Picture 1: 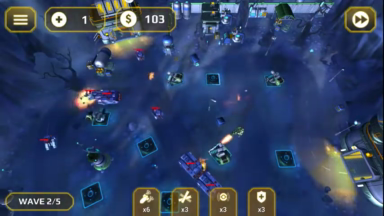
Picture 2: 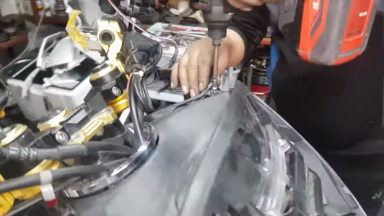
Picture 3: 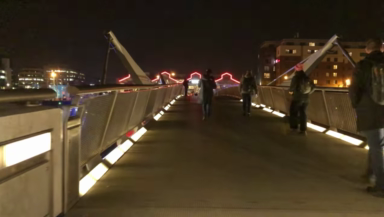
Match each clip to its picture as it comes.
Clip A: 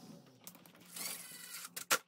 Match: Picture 2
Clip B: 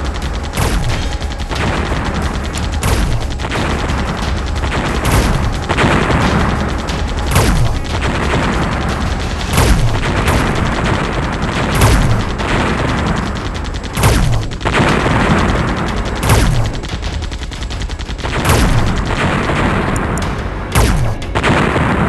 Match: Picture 1